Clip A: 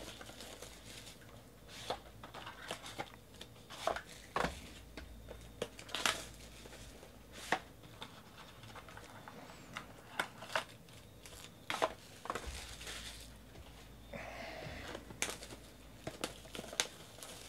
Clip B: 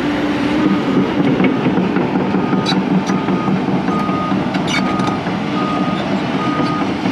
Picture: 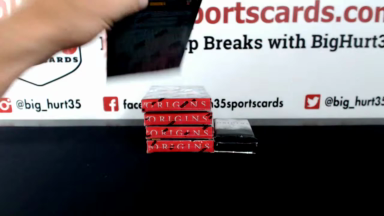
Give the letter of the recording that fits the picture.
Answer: A